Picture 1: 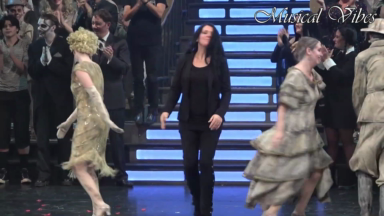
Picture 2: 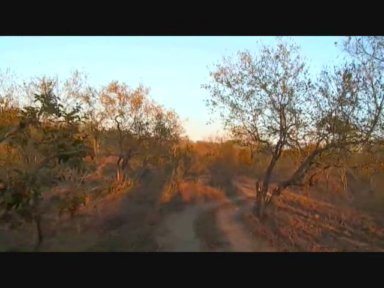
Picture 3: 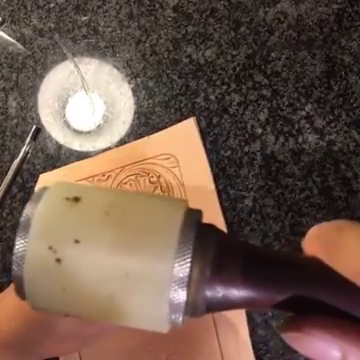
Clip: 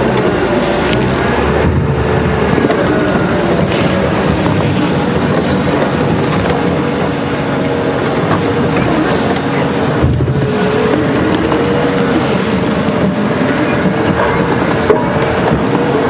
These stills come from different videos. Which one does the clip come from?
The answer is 2